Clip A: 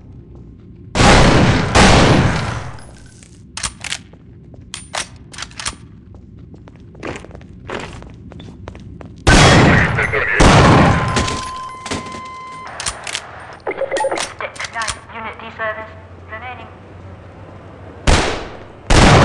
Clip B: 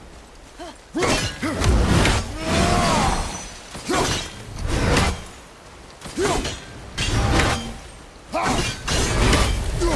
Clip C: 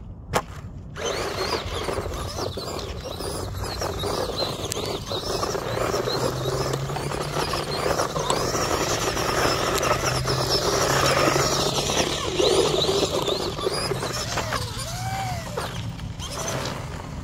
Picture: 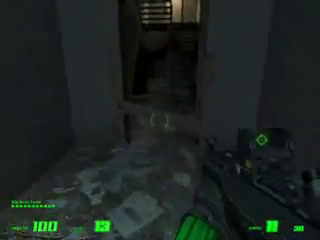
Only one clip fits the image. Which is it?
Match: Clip A